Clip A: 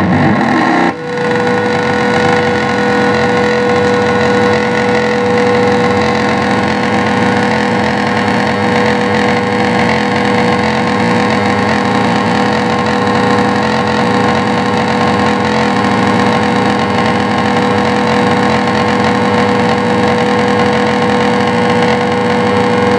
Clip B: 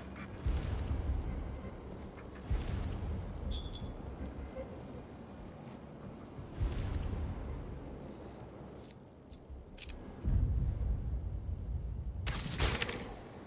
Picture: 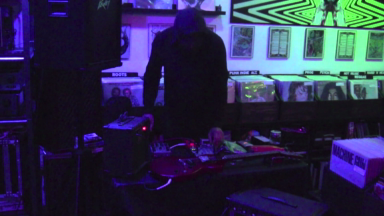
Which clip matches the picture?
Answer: A